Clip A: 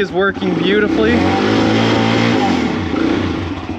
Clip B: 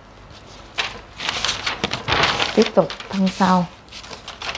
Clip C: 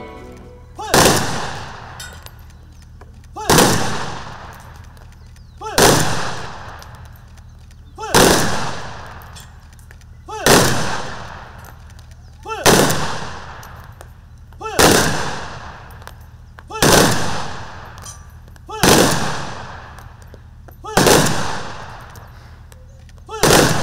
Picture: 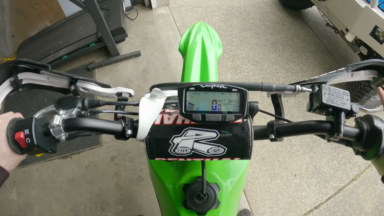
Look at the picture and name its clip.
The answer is A